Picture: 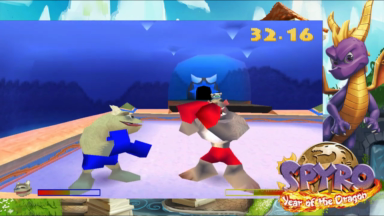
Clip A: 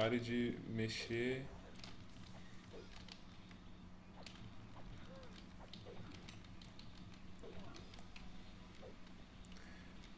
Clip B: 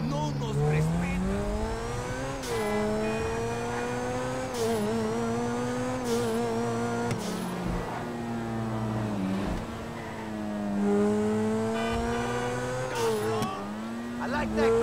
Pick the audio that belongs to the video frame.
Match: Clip A